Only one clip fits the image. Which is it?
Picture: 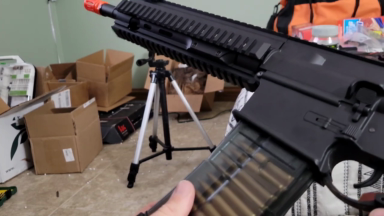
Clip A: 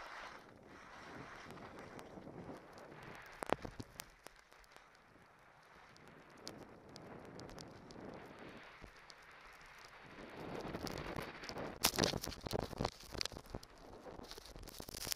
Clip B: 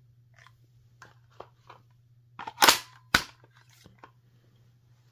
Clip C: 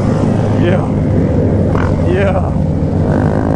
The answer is B